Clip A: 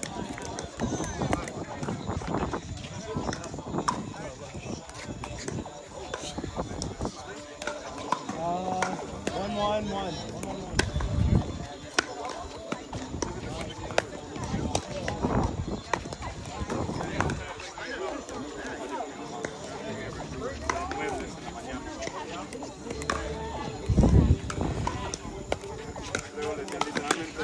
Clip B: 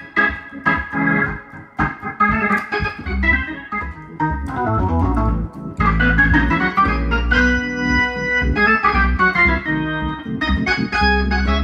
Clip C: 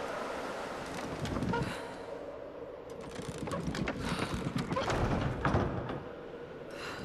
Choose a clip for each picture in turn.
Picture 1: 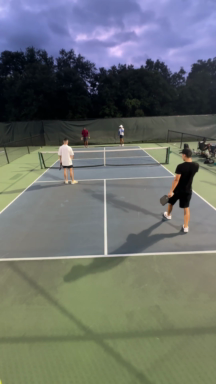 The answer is A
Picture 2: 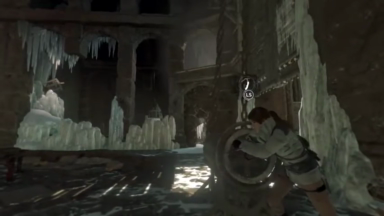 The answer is C